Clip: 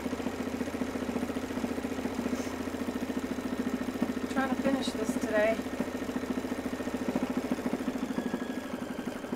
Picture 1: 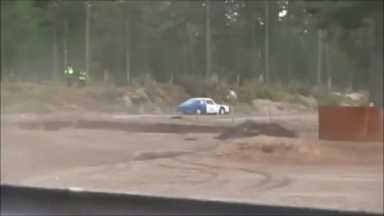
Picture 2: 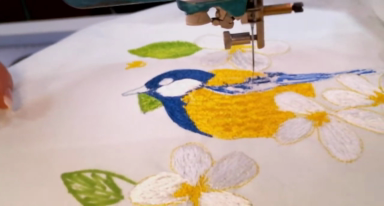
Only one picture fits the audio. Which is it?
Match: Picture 2